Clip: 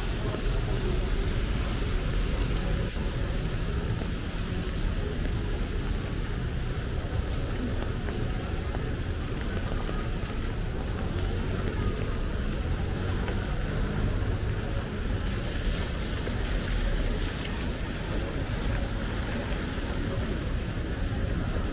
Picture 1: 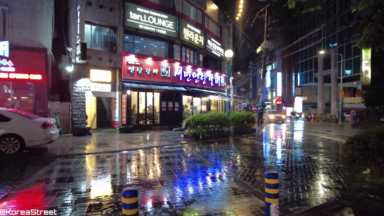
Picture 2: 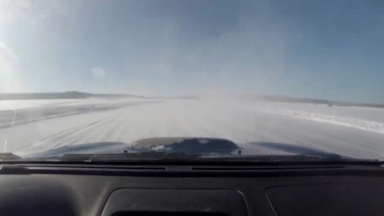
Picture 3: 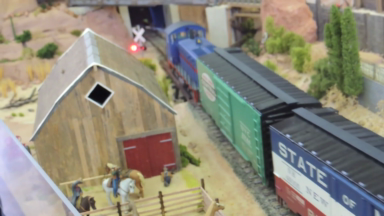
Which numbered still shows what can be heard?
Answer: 1